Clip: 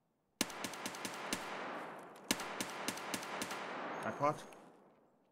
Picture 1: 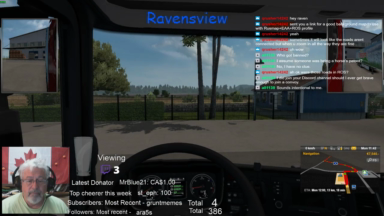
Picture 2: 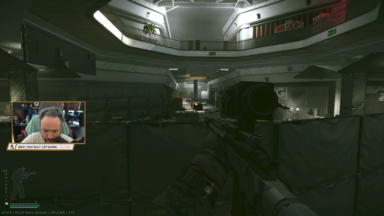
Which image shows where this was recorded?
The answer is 2